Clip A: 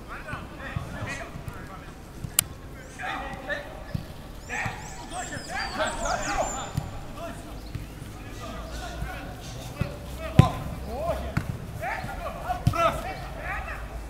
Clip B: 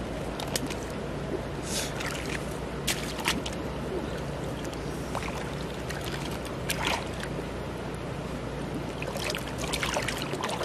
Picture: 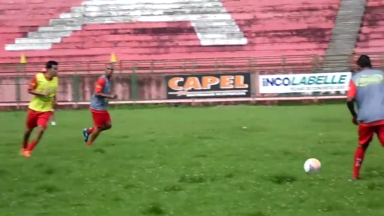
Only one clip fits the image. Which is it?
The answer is A